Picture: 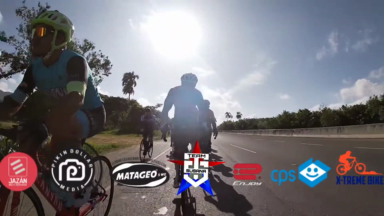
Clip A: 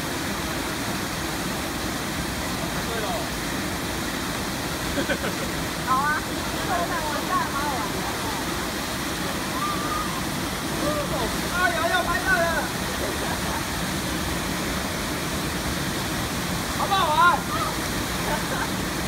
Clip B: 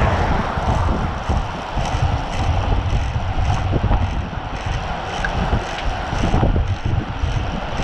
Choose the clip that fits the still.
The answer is B